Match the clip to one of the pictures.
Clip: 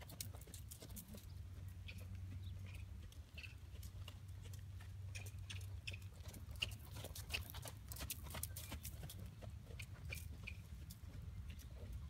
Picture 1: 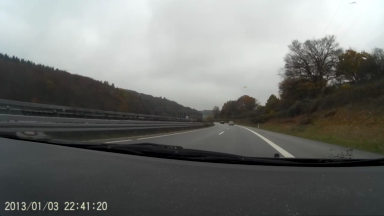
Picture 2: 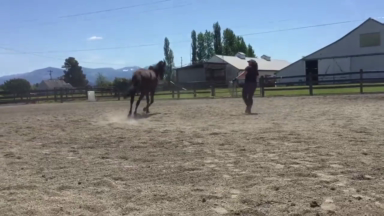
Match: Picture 2